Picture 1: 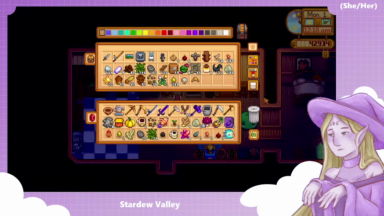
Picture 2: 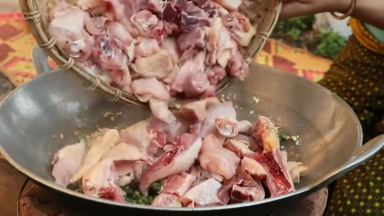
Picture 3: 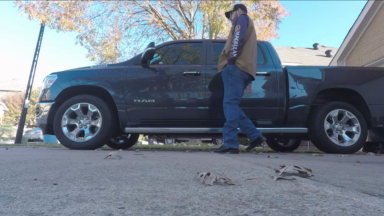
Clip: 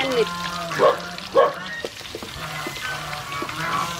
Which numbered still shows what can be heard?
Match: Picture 2